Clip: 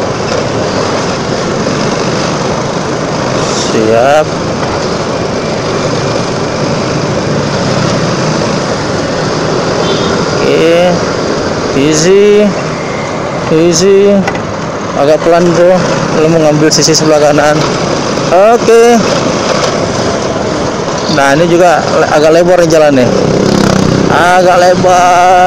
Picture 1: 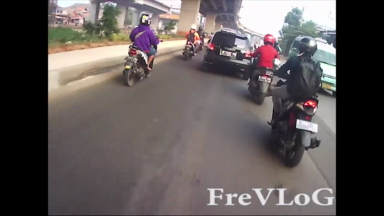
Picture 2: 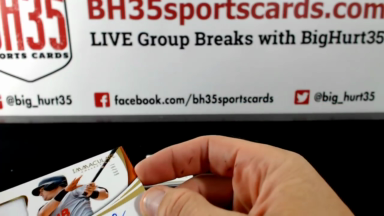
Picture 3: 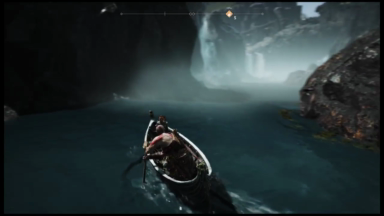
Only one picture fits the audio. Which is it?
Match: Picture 1